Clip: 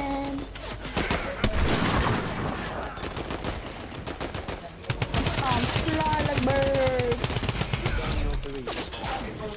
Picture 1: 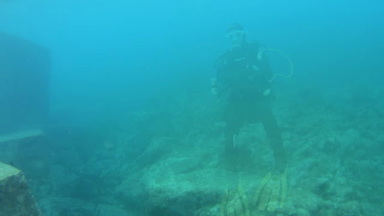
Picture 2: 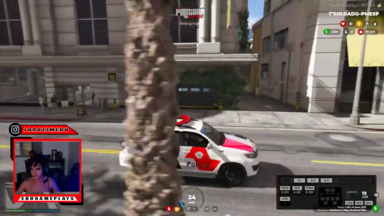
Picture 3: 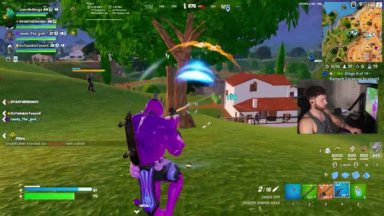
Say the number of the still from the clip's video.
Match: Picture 3